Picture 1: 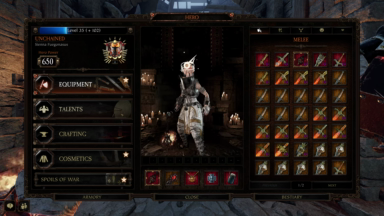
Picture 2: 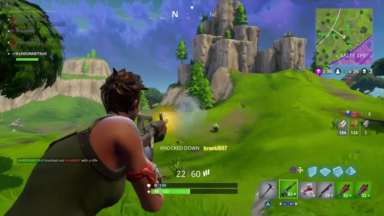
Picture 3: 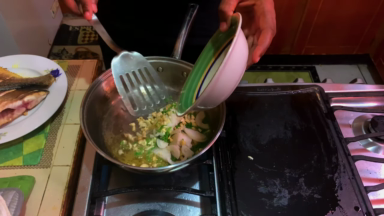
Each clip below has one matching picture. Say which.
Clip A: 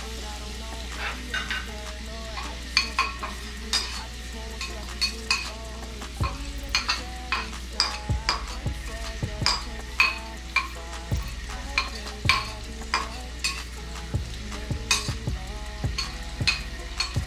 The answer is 3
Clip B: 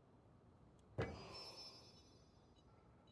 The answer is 1